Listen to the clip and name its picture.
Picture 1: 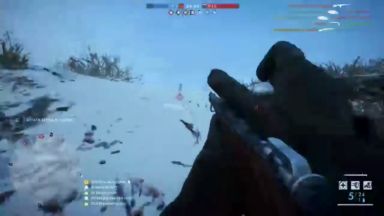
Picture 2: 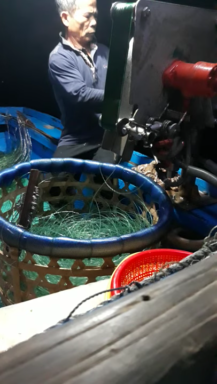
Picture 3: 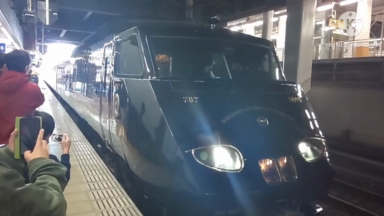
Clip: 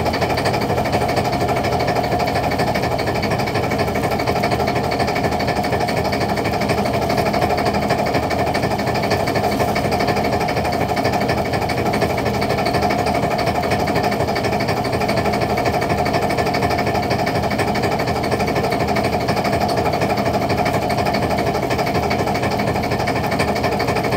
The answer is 2